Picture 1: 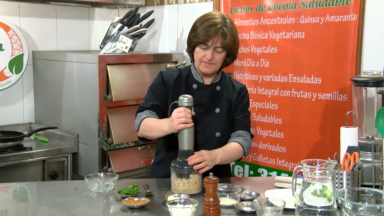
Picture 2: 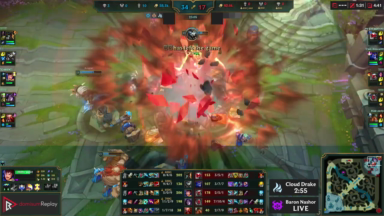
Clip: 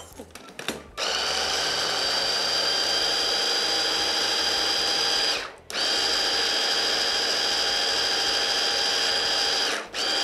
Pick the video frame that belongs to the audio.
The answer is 1